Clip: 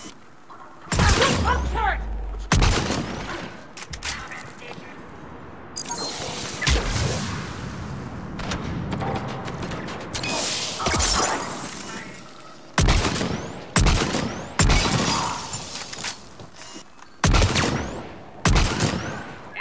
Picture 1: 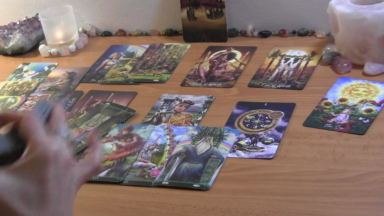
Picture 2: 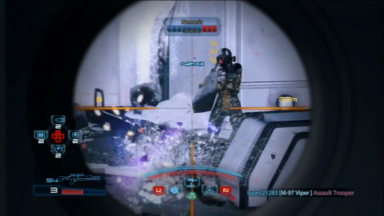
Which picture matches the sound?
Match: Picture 2